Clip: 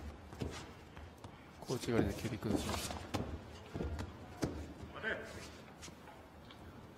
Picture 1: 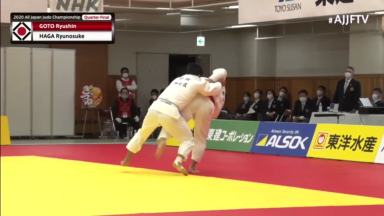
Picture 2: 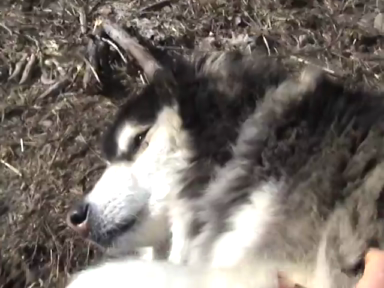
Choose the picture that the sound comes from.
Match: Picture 1